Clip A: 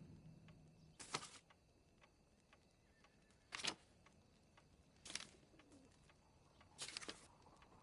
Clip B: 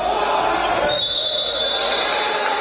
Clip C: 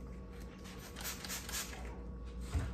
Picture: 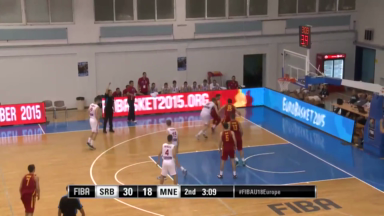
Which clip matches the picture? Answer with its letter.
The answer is B